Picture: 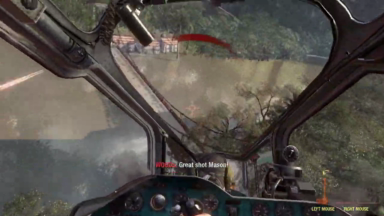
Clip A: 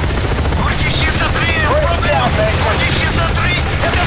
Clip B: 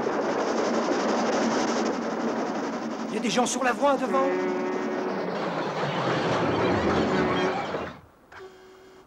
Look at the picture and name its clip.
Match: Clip A